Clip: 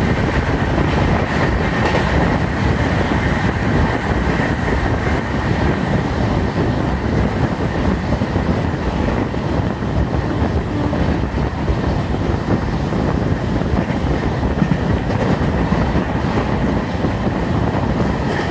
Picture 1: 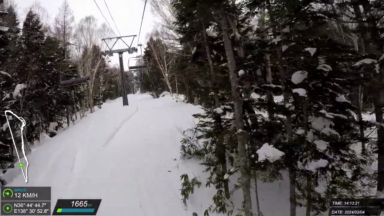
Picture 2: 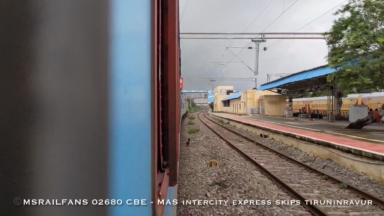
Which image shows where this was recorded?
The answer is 2